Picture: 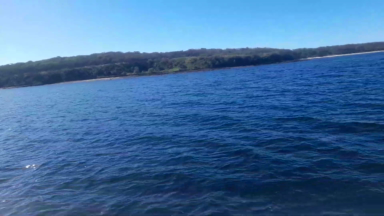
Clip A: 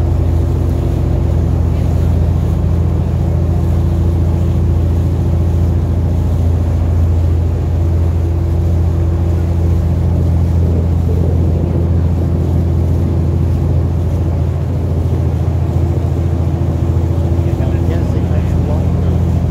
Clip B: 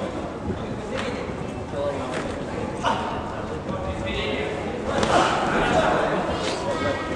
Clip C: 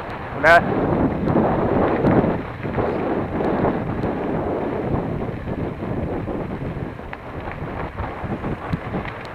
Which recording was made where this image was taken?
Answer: A